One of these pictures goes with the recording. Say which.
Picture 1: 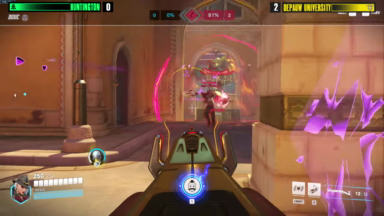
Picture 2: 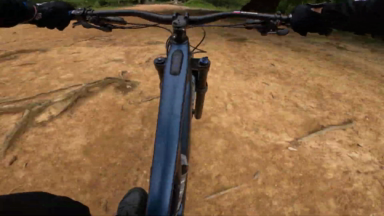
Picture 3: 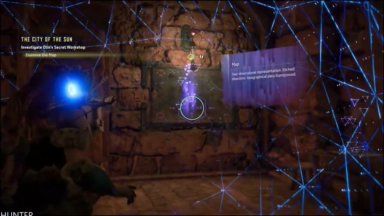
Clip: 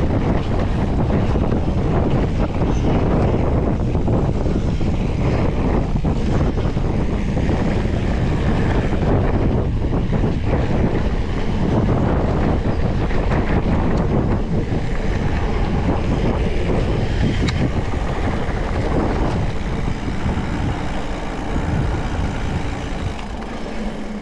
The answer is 2